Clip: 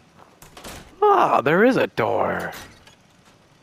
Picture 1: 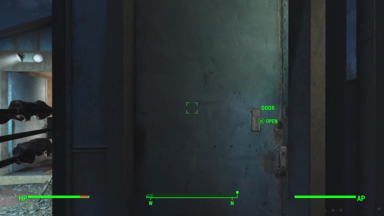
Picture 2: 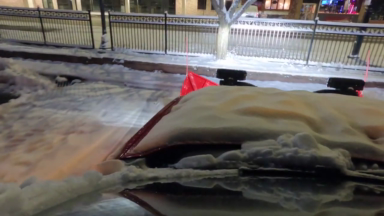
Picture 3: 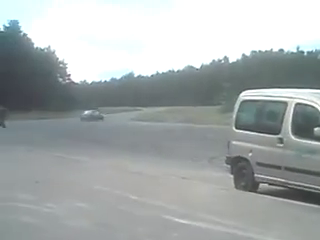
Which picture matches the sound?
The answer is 1